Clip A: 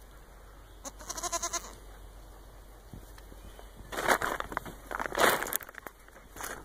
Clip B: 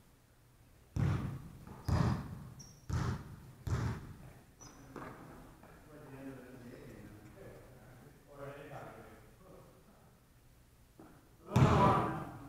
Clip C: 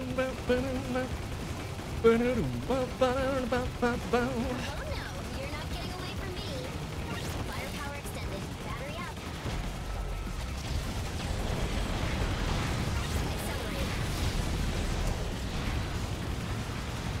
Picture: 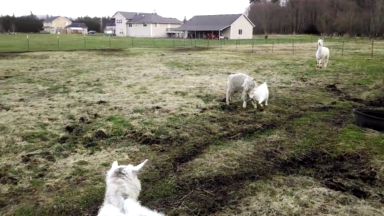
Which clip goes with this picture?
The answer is A